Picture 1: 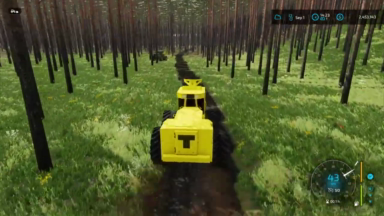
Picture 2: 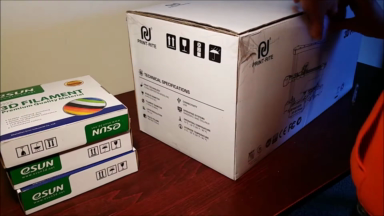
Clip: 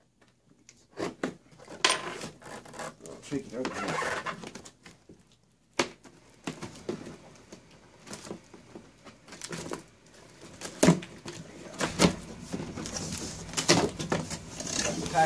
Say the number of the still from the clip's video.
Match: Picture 2